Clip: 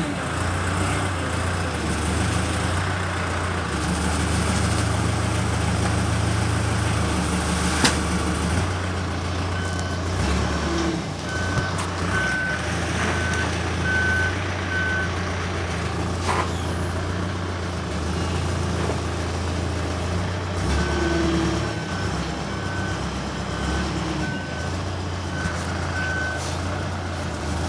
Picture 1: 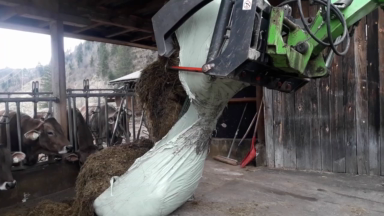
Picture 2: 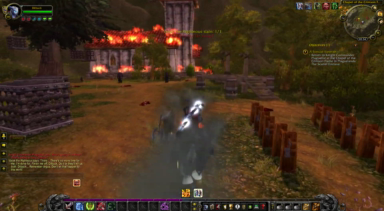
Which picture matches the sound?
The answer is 1